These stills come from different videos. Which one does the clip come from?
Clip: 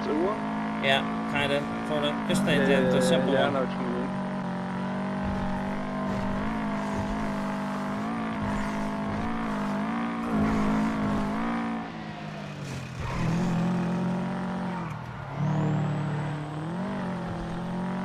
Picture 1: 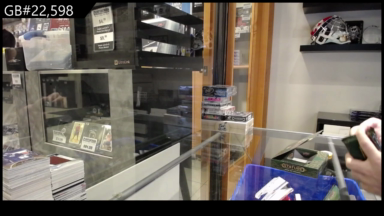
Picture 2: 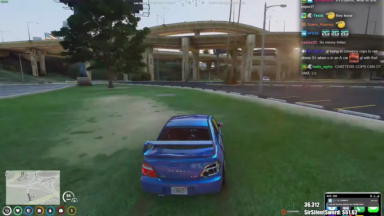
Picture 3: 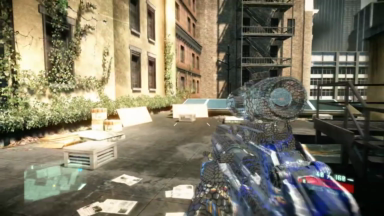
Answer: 2